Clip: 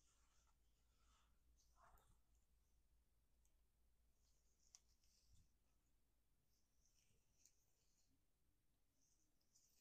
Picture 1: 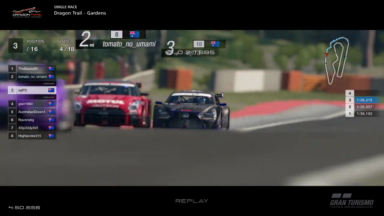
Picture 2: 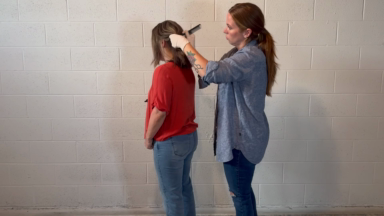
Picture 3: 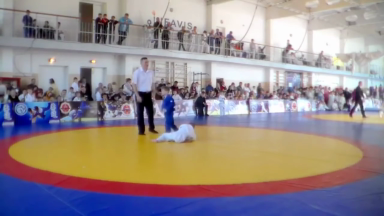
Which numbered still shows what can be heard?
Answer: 2